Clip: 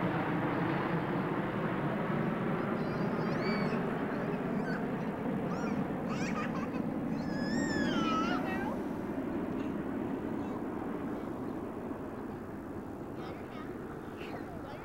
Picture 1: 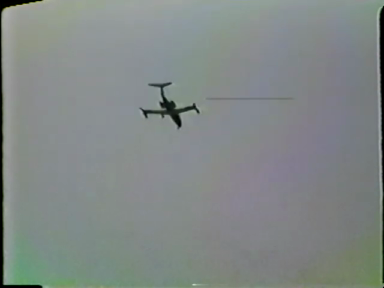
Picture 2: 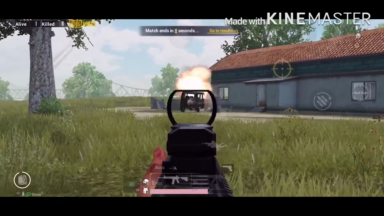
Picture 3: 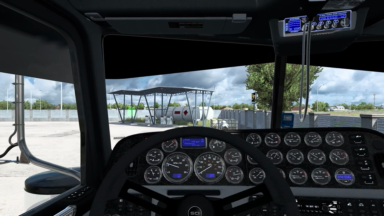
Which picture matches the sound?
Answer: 1